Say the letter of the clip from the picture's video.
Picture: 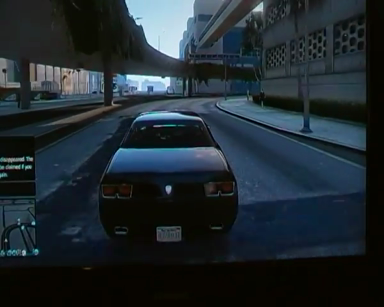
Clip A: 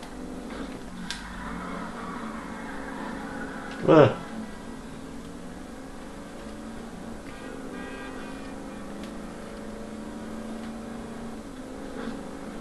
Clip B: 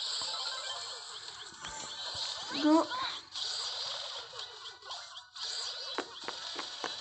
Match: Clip A